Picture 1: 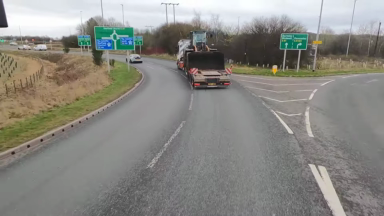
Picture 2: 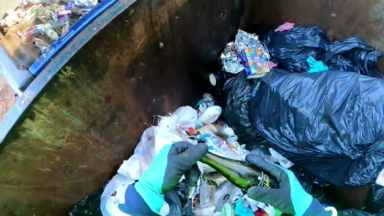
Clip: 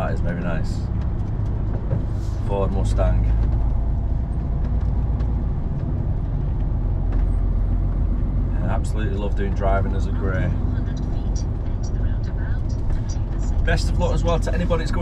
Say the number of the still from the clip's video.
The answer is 1